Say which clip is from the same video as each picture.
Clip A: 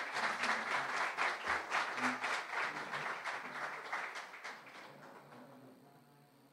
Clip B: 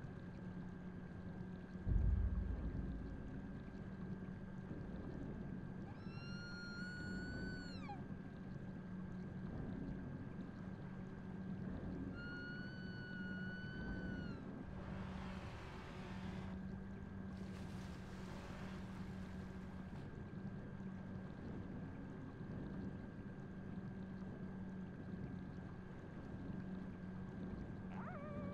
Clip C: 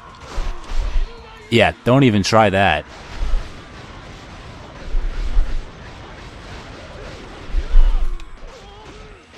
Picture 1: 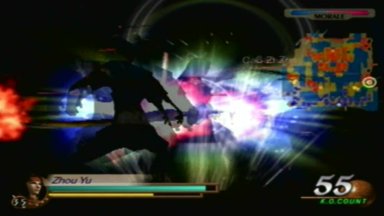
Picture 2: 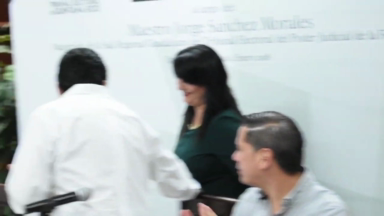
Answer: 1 C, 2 A